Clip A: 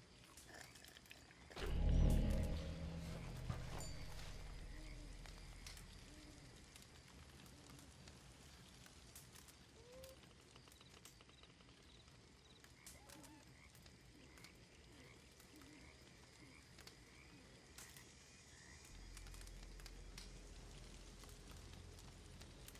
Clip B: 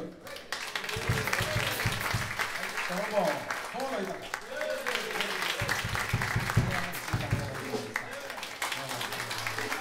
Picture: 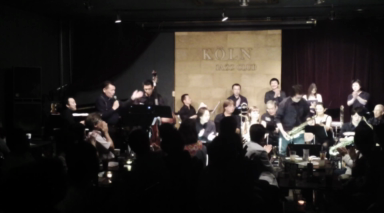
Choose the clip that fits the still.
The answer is B